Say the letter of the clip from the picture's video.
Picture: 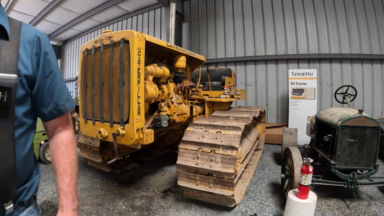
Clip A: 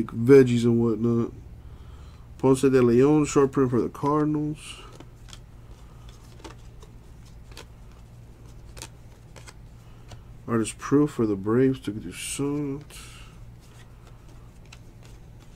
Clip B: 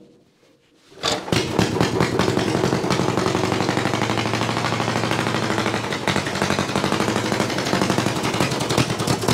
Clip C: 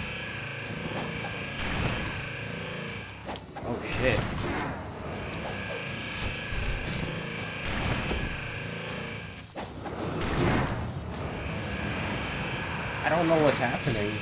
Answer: B